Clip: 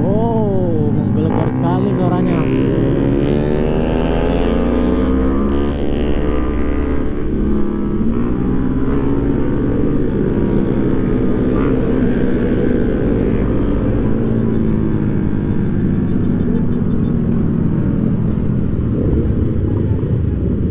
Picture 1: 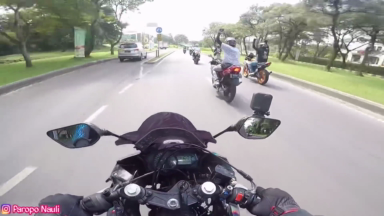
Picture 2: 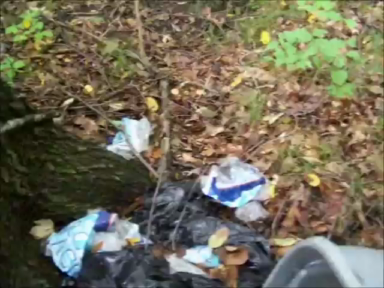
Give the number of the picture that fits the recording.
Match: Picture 1